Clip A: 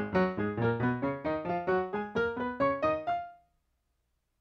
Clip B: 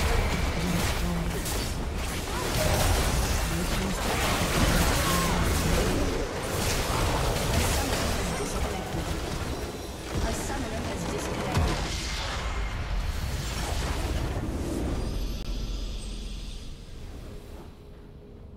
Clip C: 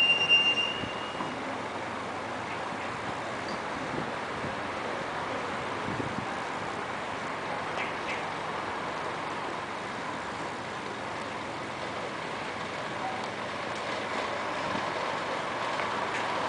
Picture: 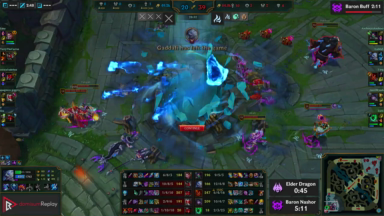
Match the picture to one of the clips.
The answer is B